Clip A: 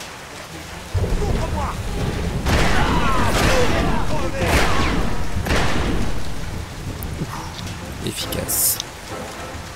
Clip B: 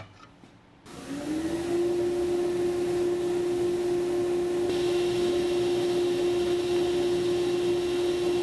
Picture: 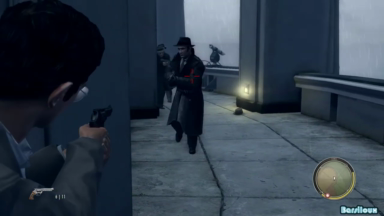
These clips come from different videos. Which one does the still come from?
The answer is A